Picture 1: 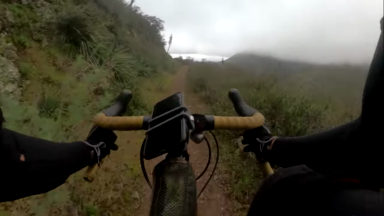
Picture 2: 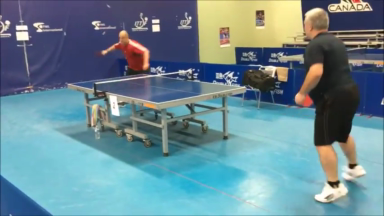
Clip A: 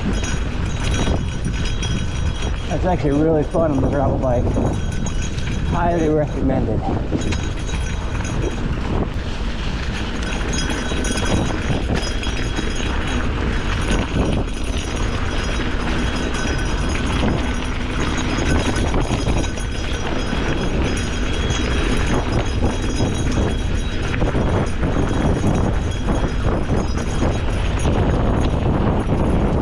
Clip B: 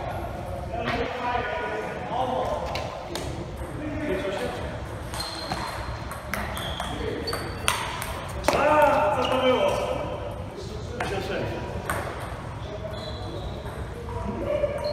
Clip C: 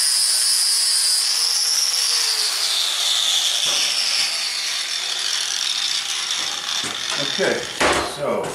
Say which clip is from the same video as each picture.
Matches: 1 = A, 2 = B